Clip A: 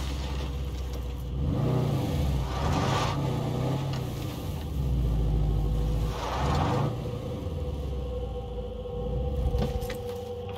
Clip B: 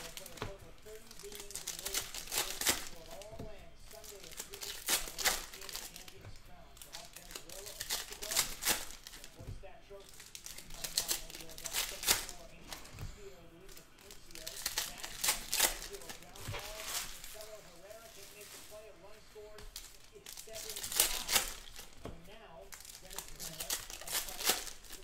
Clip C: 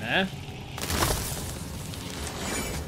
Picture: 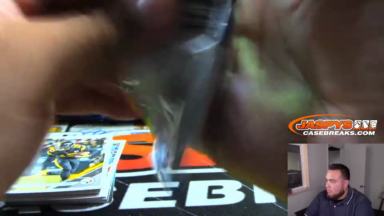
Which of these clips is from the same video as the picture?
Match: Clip B